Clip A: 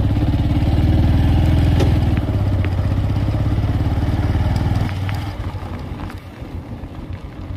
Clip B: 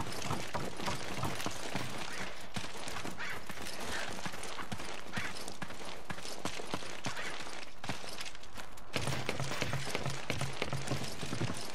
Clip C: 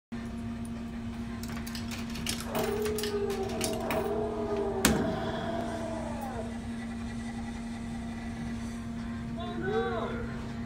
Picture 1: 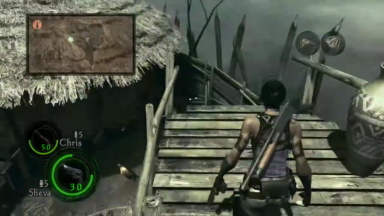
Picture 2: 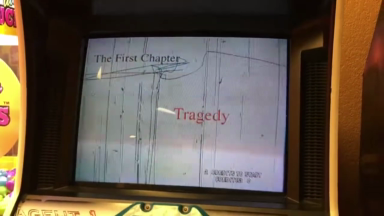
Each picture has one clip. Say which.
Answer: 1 B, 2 C